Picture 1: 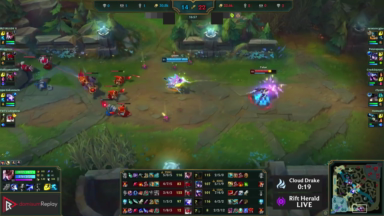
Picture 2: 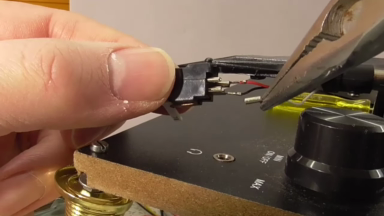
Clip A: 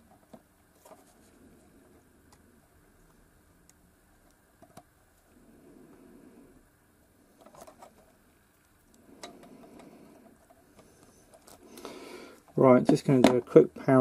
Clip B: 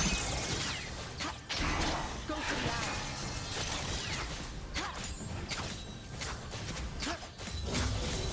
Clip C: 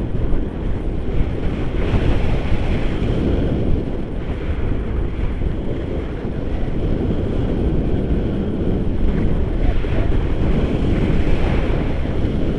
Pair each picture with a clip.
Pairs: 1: B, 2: A